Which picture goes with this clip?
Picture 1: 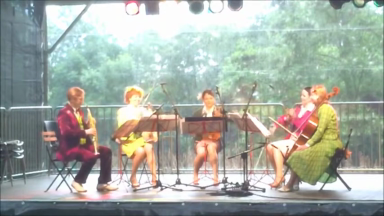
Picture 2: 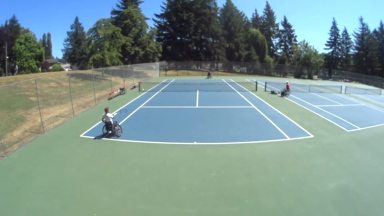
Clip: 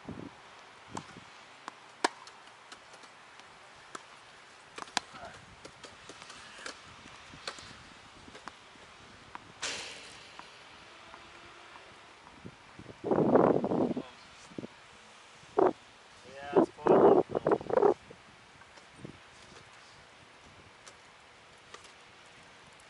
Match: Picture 2